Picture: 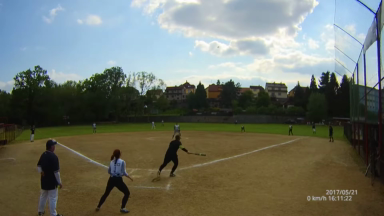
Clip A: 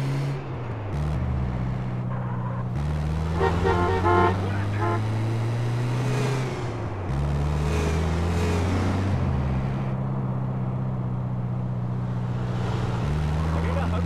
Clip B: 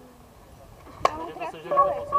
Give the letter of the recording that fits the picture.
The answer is B